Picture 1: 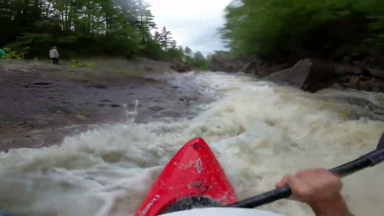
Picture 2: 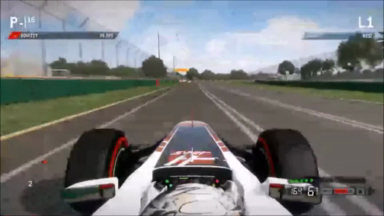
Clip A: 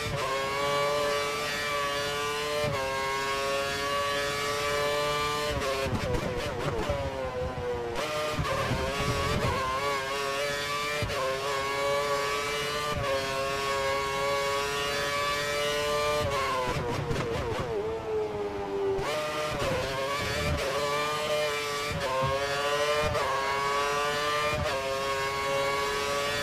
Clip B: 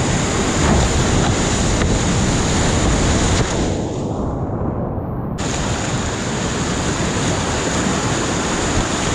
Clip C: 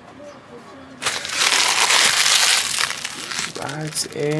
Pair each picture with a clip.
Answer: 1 B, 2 A